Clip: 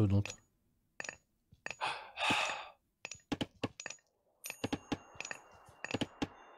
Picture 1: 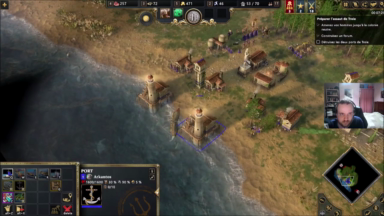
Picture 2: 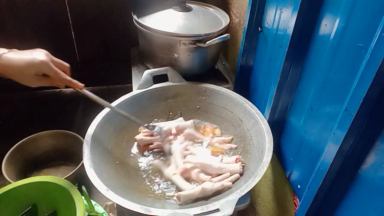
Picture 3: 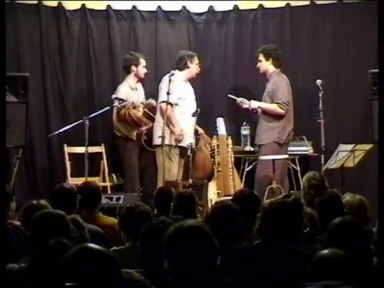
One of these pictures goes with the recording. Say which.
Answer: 1